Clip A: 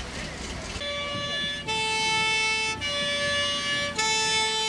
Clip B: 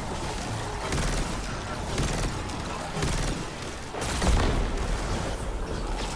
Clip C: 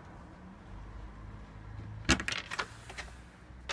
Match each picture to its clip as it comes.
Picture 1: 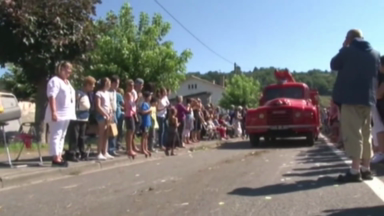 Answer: A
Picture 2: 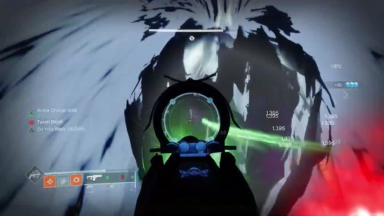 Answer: B